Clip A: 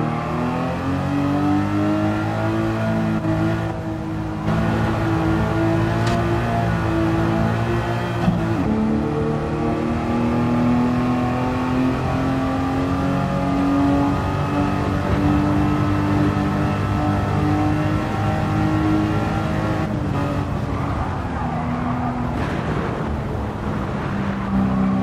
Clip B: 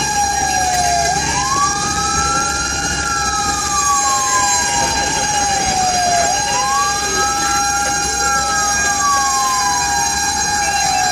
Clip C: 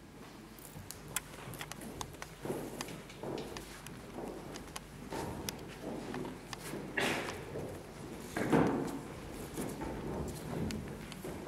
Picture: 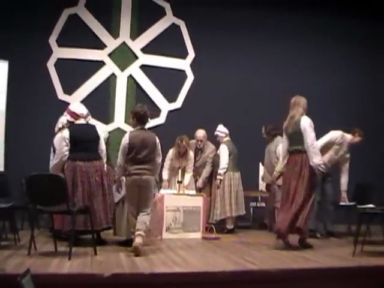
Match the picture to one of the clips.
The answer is C